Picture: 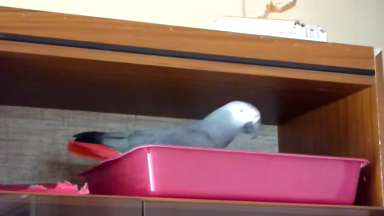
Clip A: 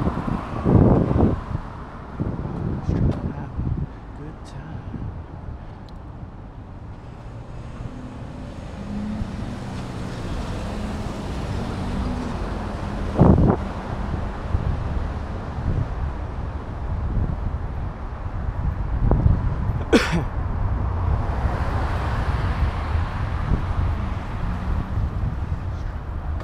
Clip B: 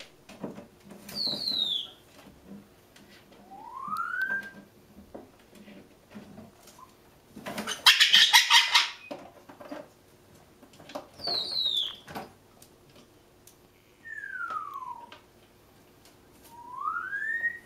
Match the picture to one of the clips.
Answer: B